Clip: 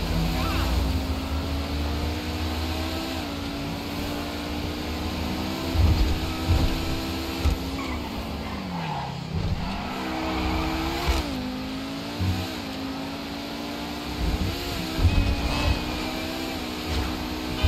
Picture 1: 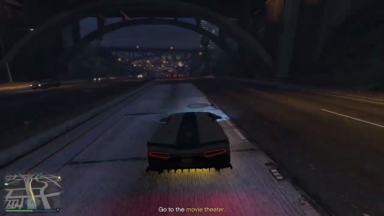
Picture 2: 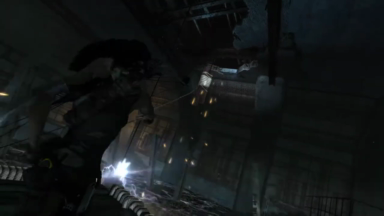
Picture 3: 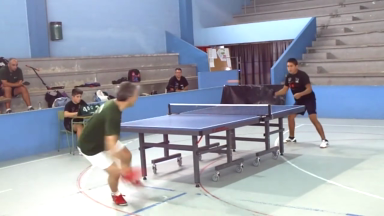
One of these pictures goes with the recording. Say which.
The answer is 1